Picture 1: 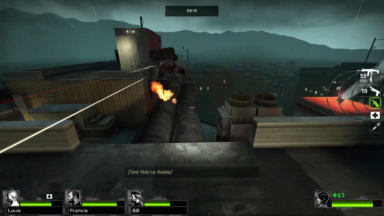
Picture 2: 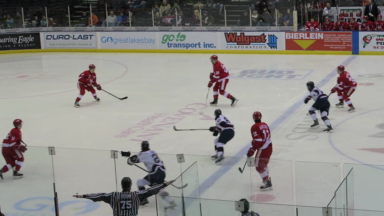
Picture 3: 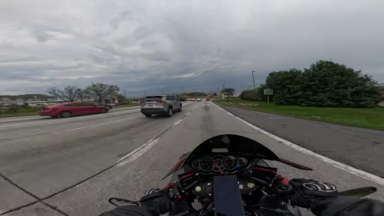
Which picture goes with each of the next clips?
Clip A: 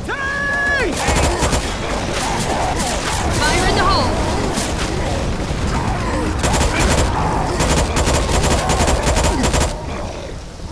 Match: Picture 1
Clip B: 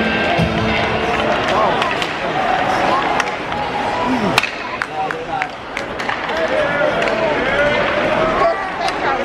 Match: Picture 2